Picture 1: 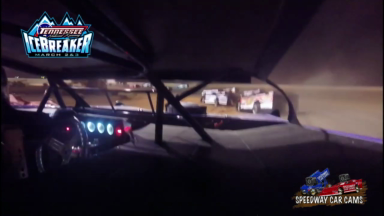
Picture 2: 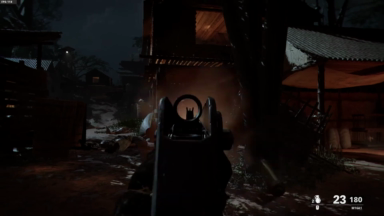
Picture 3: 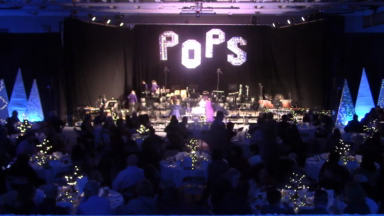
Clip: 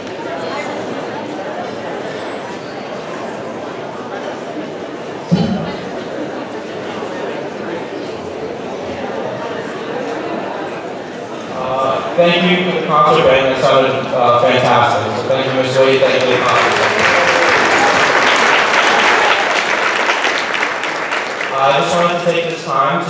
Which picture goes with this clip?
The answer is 3